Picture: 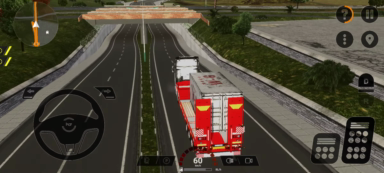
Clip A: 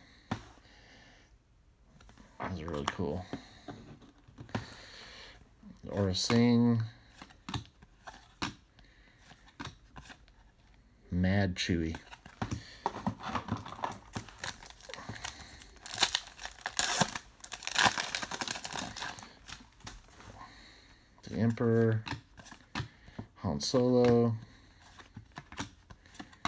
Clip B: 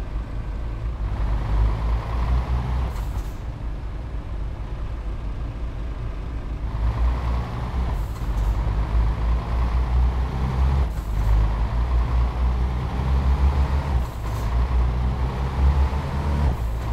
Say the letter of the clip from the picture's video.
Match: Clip B